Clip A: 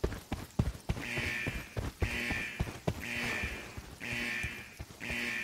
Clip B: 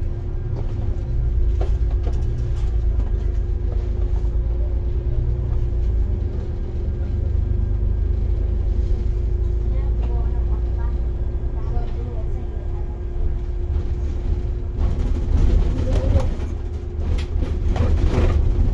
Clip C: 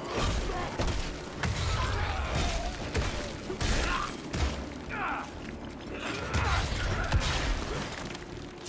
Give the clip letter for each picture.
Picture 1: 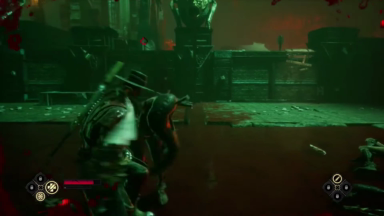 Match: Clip C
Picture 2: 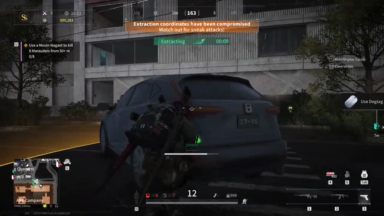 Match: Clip A